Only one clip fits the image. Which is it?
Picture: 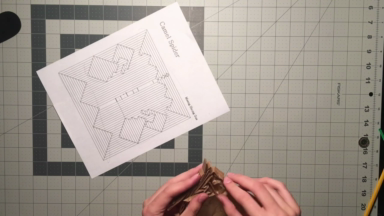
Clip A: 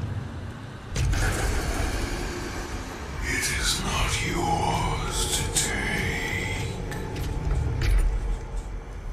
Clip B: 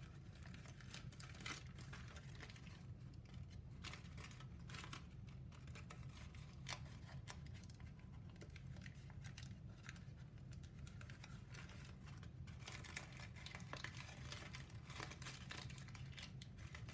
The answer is B